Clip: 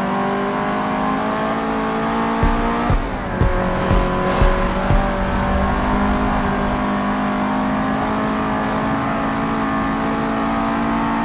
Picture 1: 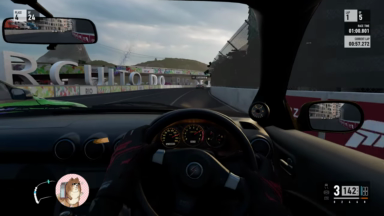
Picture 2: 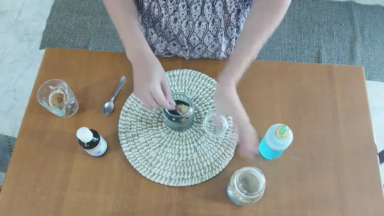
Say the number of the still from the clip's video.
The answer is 1